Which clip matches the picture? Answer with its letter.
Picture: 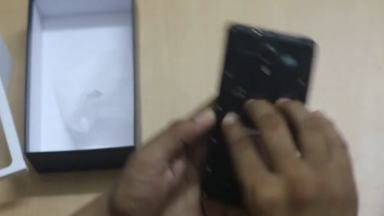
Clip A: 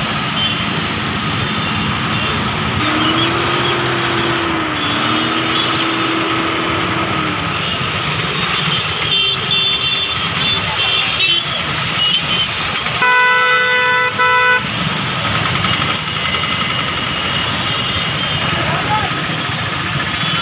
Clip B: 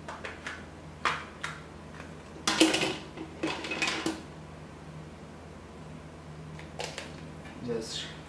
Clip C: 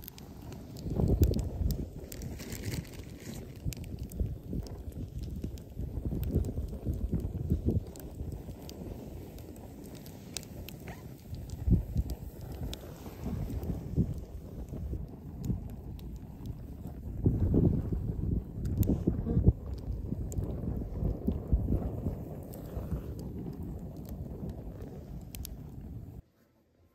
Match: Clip B